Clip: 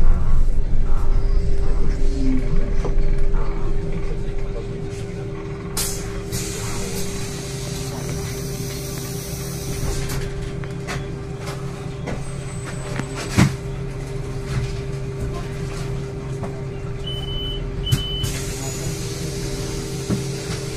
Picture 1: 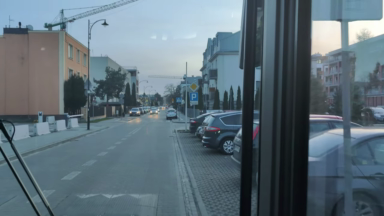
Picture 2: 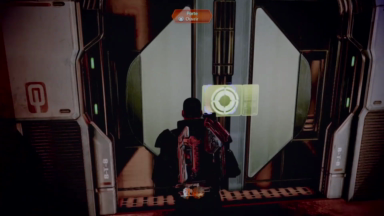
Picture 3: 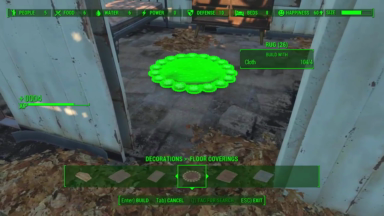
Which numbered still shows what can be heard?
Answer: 1